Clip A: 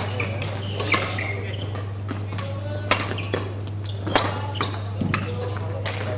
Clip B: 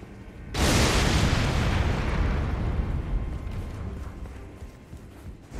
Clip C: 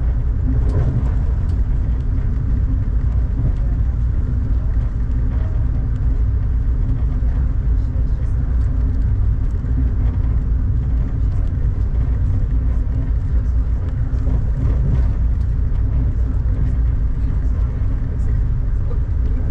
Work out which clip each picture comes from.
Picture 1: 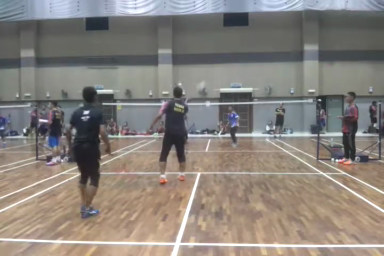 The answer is A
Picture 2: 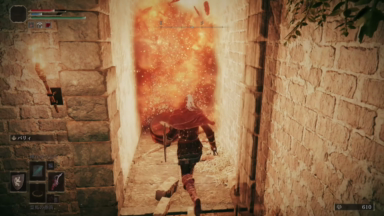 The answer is B